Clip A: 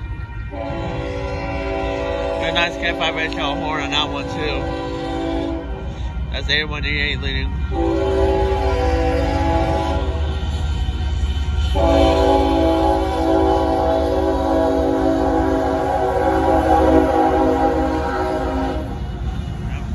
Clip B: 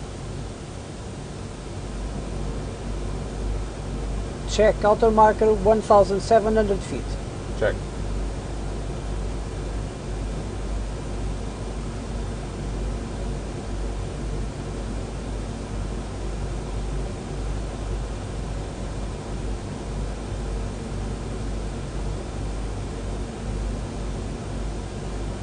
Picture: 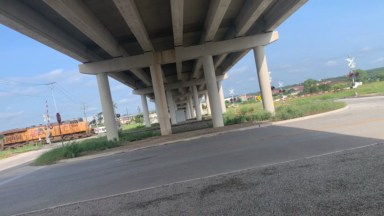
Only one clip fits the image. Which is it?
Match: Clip A